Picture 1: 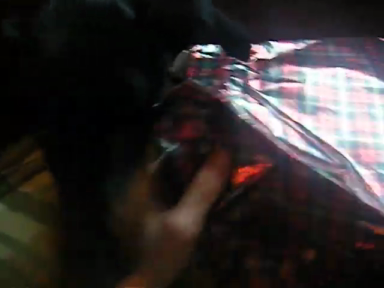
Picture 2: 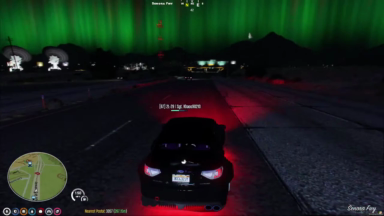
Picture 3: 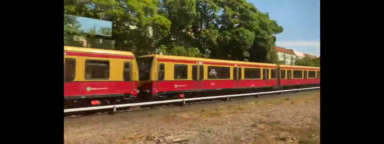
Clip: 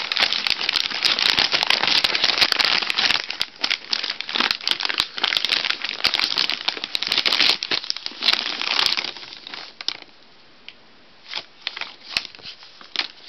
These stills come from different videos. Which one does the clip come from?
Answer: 1